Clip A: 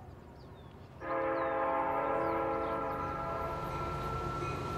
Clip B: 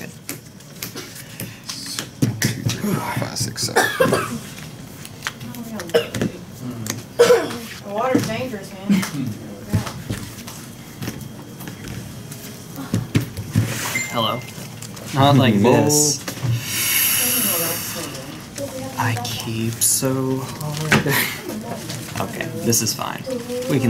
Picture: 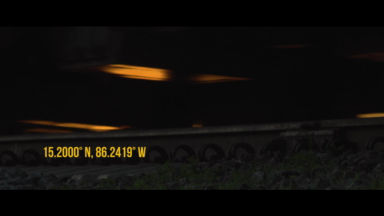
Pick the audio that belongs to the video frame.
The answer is A